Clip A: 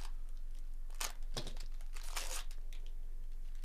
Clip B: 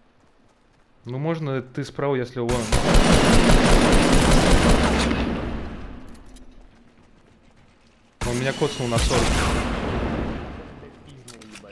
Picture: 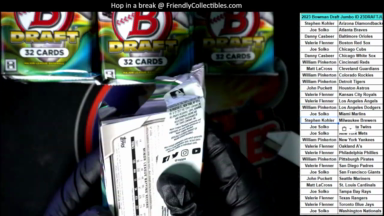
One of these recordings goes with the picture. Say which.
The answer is A